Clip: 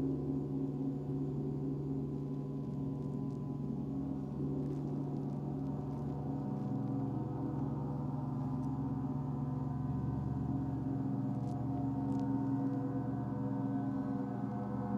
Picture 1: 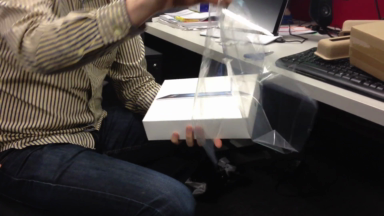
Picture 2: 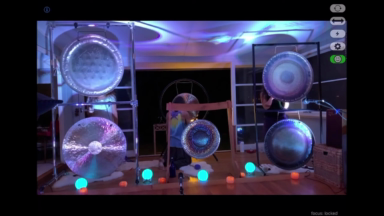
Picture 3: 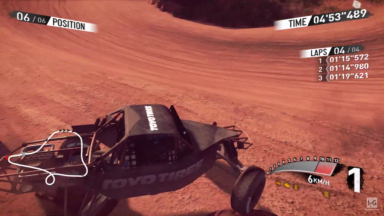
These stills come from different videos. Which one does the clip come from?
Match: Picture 2